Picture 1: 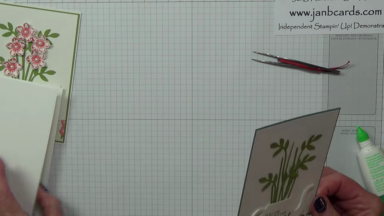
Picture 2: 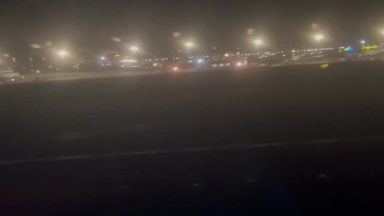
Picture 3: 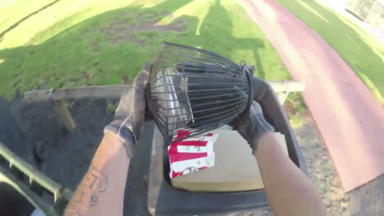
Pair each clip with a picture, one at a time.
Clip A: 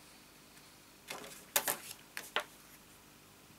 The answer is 1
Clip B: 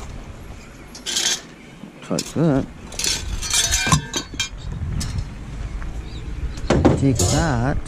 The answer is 3